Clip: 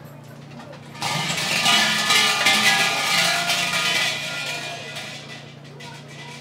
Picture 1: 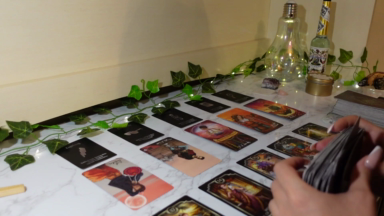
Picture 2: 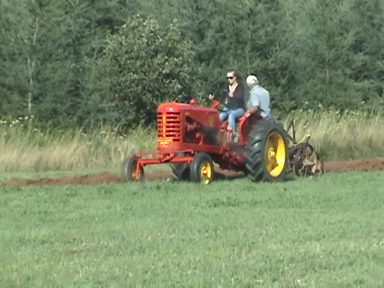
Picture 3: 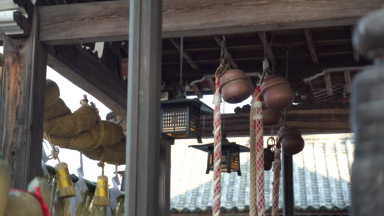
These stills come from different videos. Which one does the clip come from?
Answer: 3